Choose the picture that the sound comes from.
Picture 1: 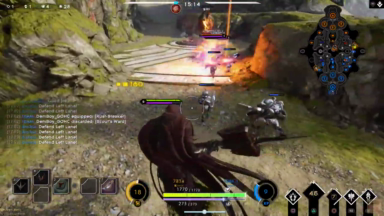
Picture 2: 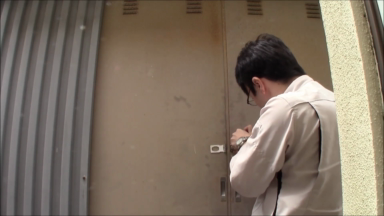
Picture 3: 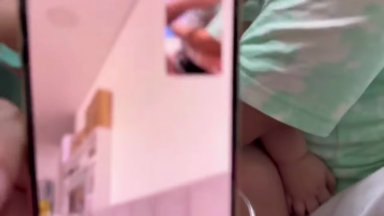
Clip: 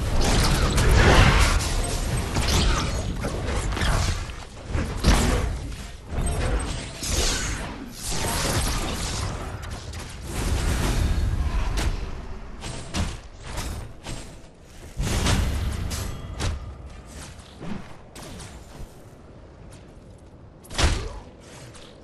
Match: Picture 1